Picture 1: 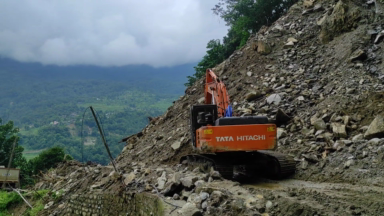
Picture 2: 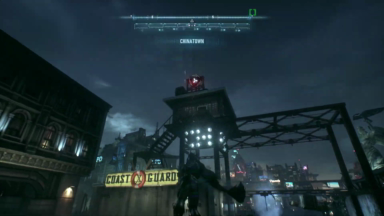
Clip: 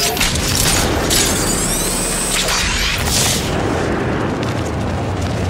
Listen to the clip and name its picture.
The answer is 2